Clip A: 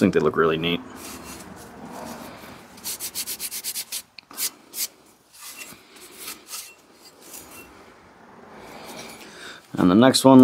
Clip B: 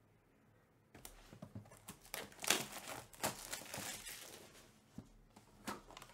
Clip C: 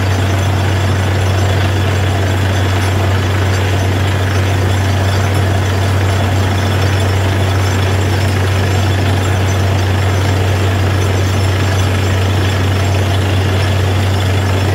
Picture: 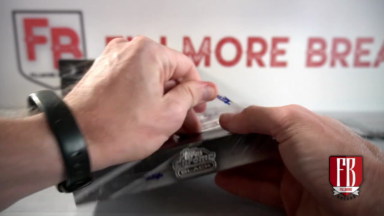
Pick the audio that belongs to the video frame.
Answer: B